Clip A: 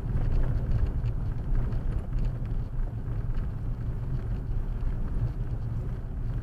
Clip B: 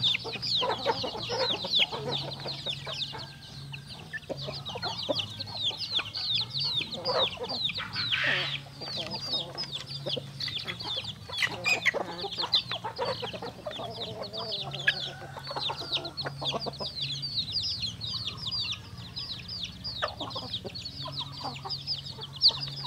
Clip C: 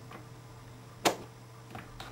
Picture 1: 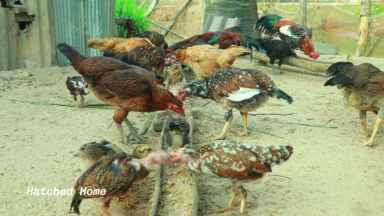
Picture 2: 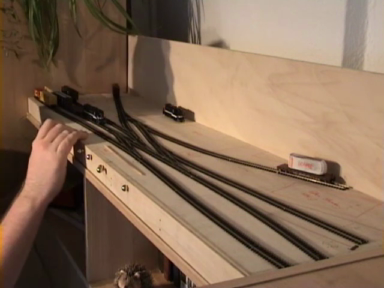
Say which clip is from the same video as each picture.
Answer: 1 B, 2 C